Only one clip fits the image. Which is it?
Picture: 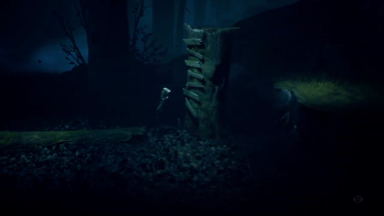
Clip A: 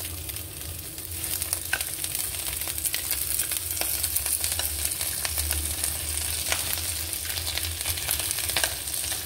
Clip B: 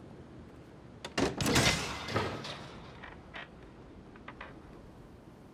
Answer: B